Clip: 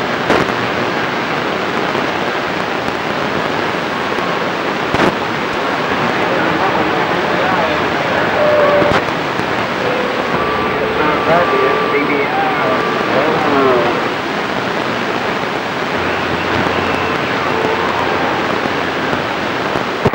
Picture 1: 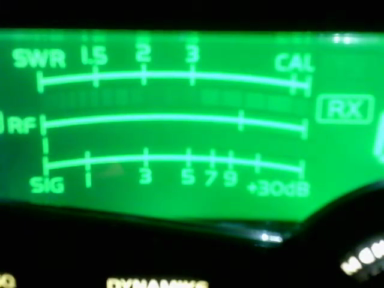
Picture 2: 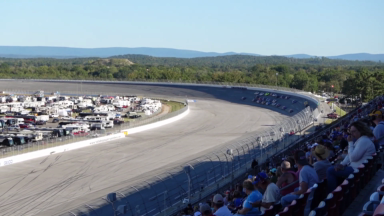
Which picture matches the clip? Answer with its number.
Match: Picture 1